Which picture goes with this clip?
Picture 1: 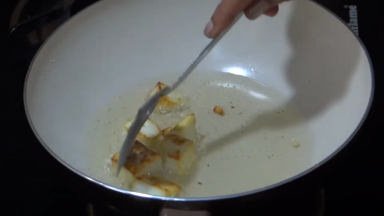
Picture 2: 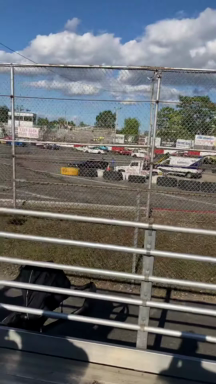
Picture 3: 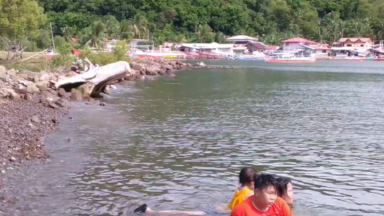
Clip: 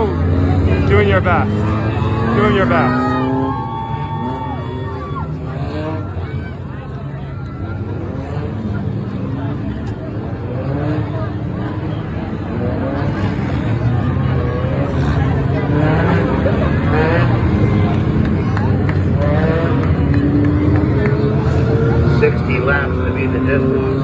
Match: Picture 2